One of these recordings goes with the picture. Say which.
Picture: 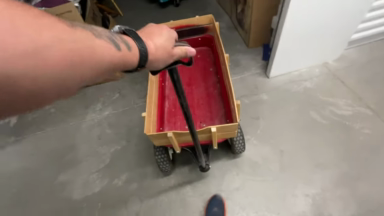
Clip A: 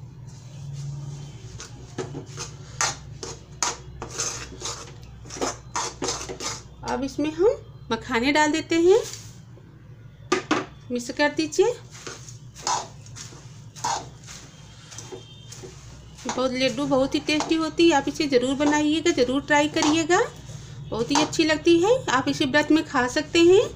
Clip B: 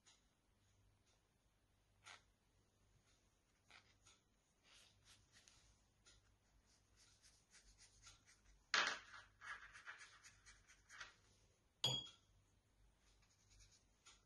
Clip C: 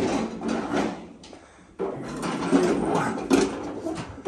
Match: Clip C